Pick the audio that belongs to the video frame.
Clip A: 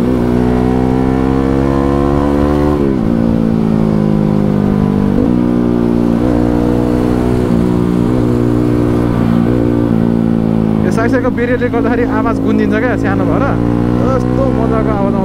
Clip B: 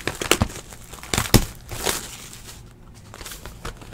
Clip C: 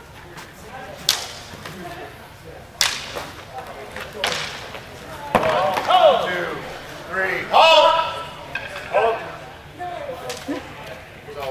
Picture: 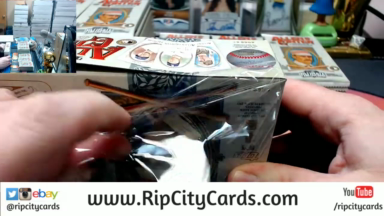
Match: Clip B